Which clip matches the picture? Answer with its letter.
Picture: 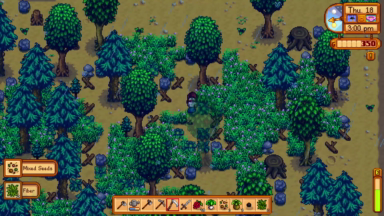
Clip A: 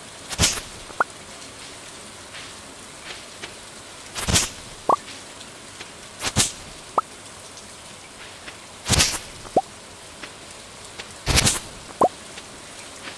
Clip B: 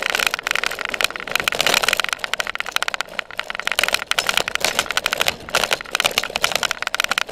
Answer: A